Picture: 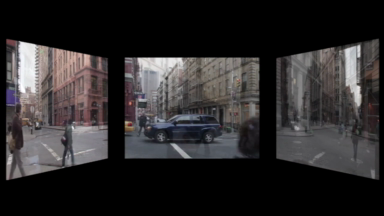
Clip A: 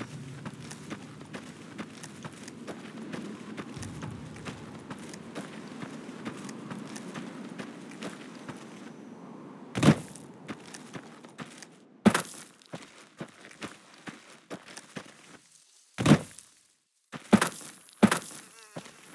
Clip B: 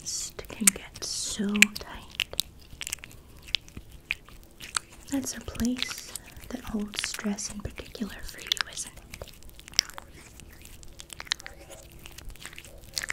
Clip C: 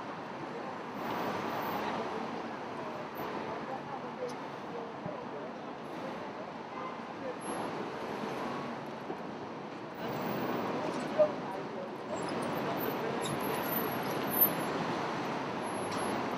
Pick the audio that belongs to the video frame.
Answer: C